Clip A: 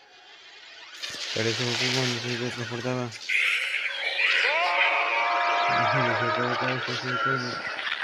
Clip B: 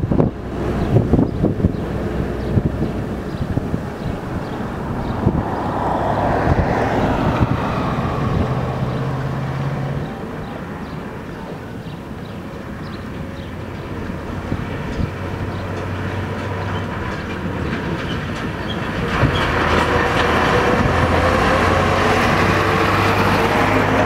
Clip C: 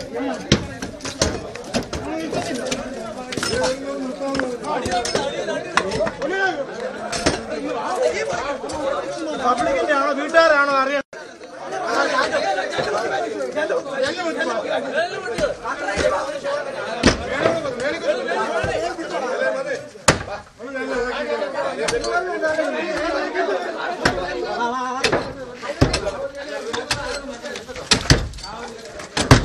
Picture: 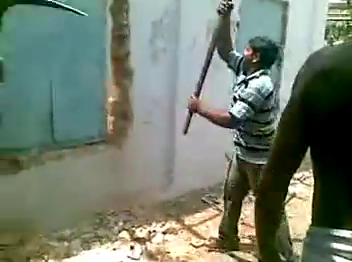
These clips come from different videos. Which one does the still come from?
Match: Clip C